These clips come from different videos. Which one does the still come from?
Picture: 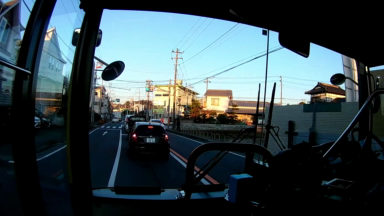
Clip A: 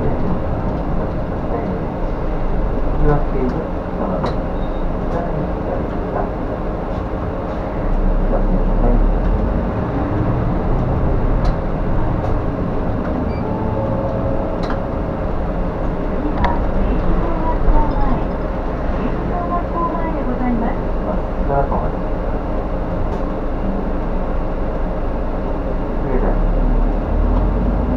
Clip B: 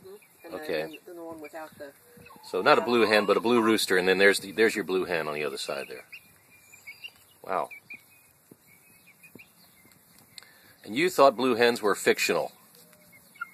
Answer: A